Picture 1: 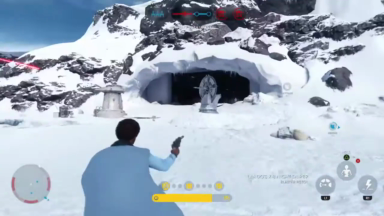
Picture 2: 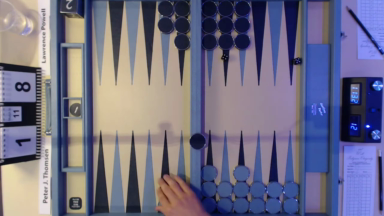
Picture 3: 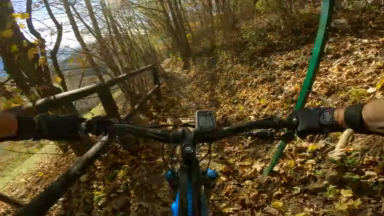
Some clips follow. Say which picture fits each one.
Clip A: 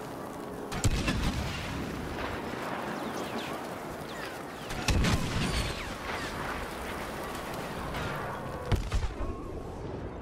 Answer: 1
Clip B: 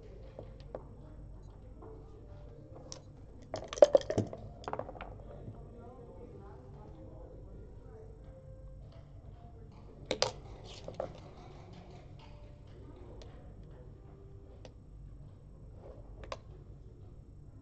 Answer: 2